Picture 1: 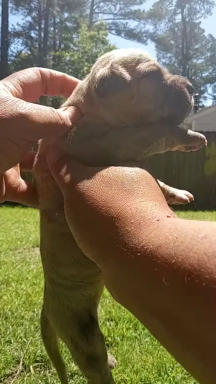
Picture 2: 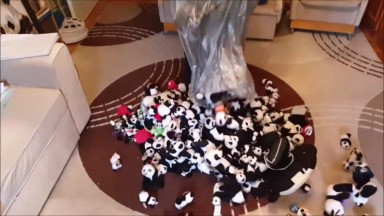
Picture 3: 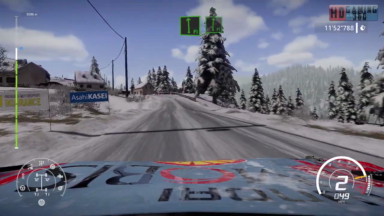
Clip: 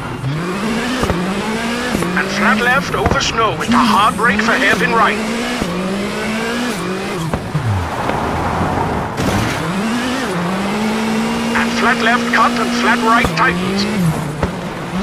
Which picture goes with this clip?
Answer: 3